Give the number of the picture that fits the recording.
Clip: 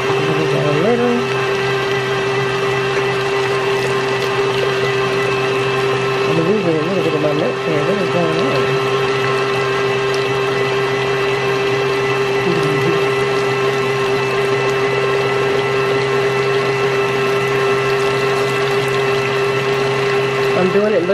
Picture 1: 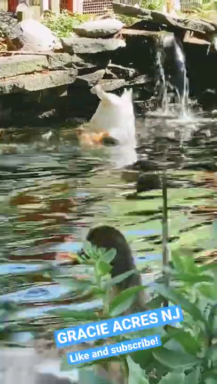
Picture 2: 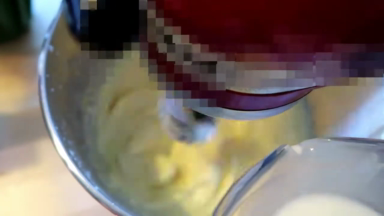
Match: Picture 2